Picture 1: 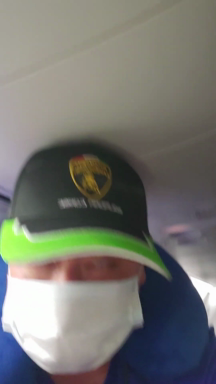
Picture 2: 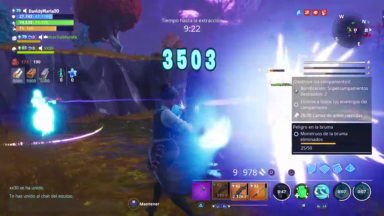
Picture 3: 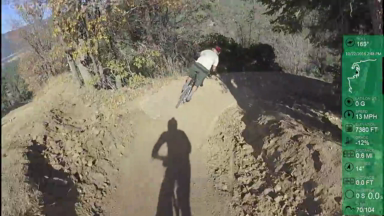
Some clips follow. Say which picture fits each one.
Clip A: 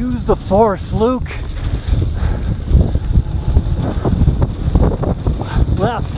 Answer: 3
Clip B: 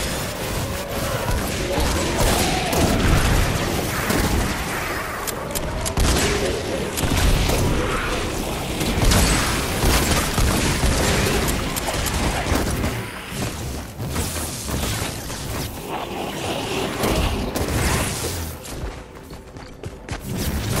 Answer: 2